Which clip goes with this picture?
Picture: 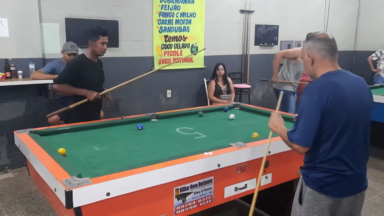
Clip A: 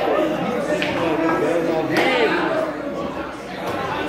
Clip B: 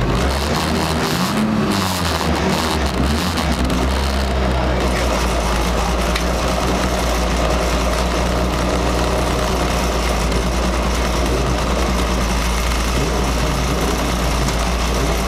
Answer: A